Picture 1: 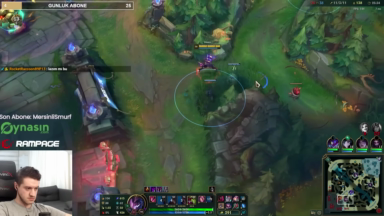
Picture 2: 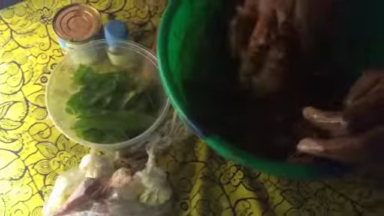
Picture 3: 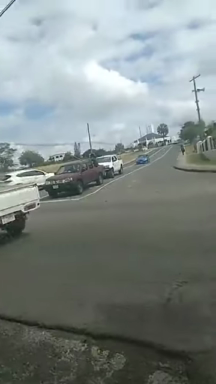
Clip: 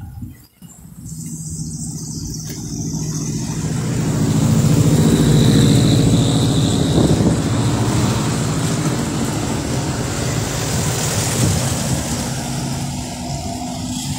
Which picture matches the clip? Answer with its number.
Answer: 3